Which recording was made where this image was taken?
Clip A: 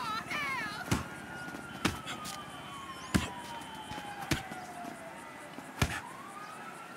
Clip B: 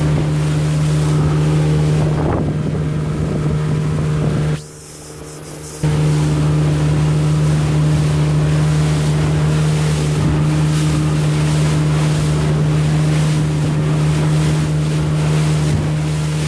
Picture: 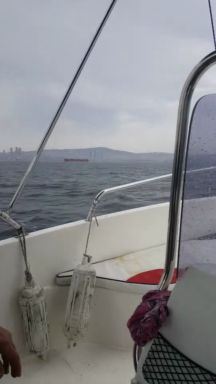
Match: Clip B